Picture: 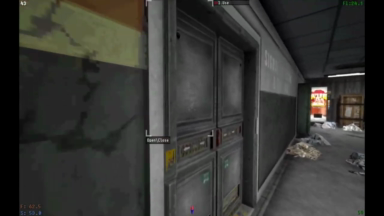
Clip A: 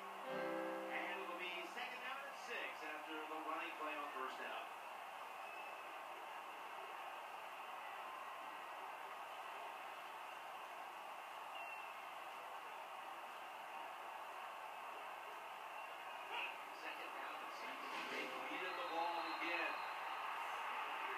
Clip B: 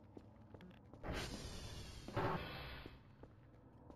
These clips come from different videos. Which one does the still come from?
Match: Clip B